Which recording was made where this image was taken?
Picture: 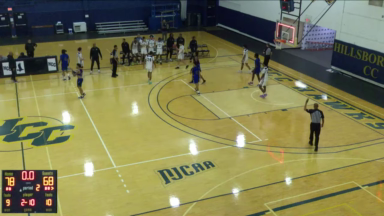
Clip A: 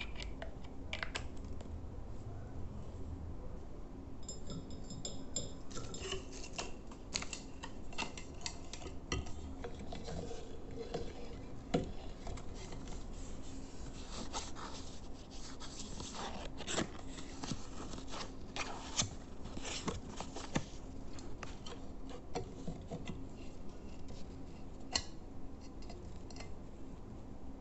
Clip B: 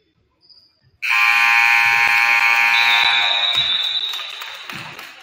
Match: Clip B